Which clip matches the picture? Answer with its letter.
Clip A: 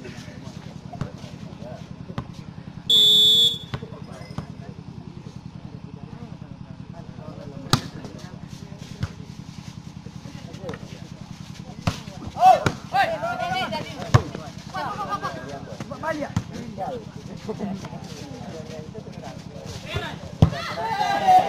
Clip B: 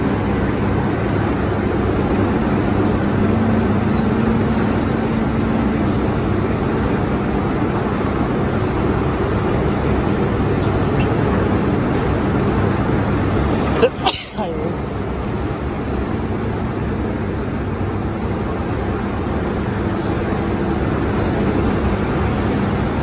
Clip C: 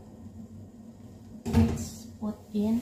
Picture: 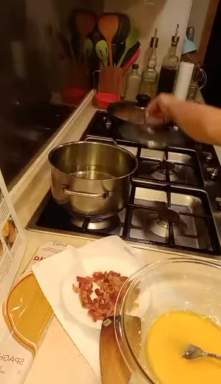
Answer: C